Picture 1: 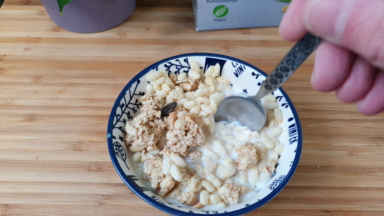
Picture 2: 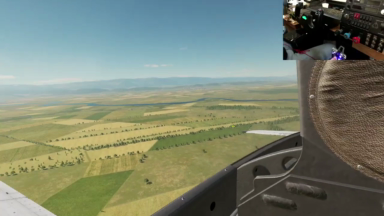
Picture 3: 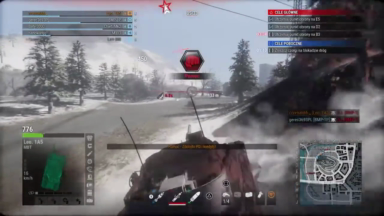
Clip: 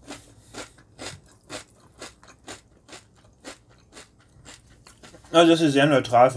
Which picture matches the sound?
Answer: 1